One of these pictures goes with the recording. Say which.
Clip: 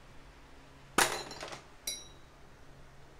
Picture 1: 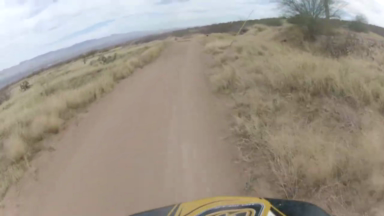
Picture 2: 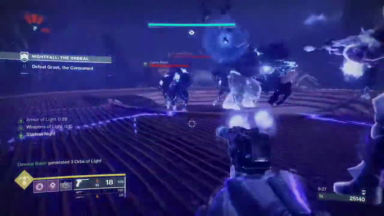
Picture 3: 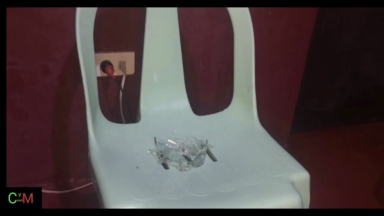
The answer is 3